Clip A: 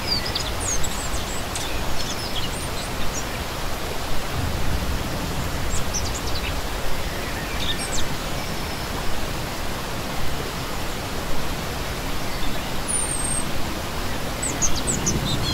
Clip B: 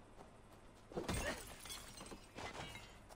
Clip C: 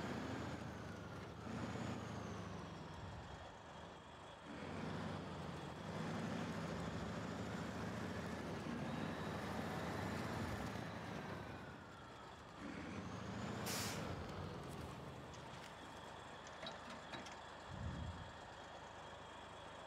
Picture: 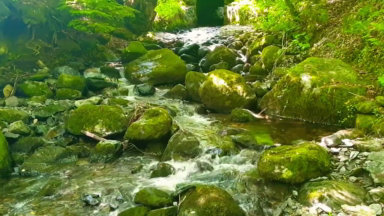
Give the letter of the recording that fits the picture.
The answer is A